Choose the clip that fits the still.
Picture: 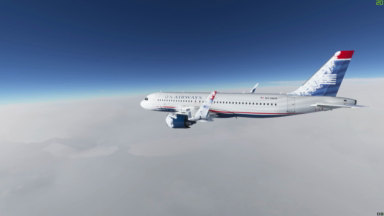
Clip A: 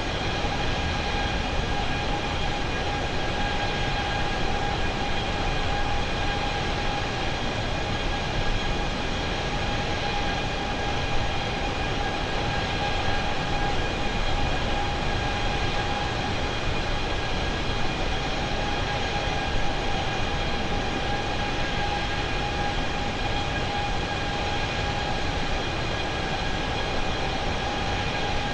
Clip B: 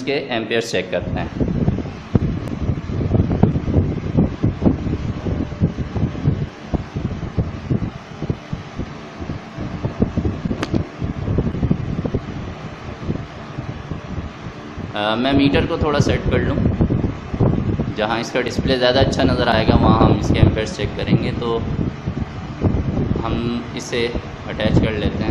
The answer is A